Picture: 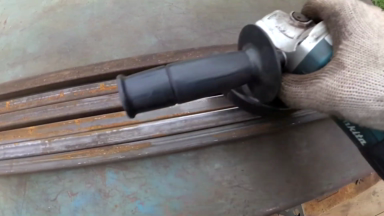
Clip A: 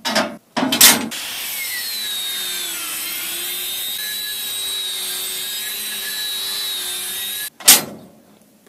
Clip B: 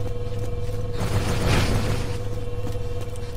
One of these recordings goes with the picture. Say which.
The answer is A